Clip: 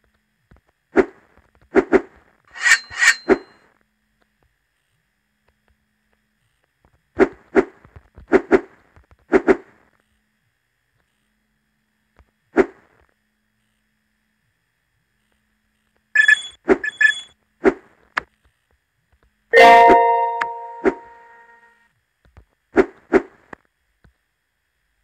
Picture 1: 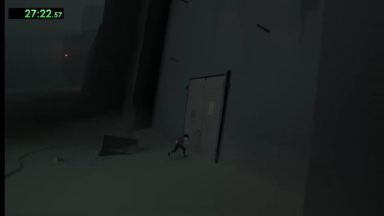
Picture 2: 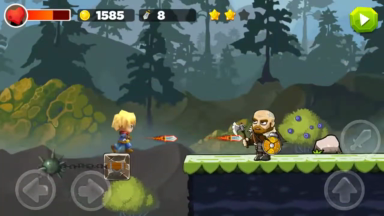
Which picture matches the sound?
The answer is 2